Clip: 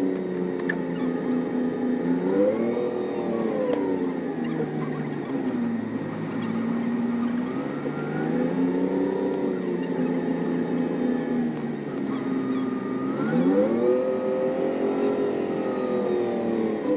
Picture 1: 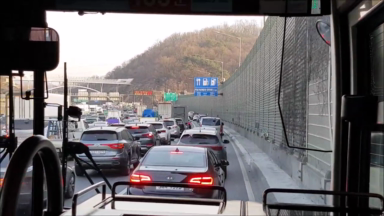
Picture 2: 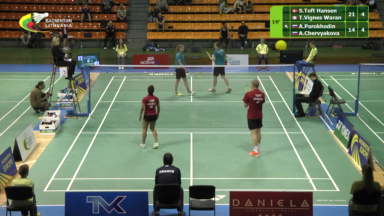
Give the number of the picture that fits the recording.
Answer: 1